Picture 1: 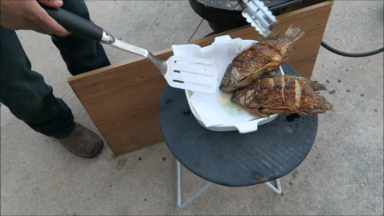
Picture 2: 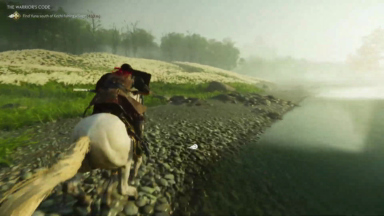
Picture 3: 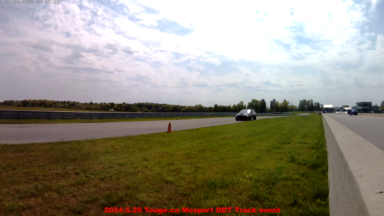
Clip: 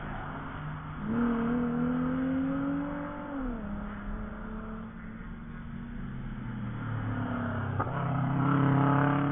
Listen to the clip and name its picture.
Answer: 3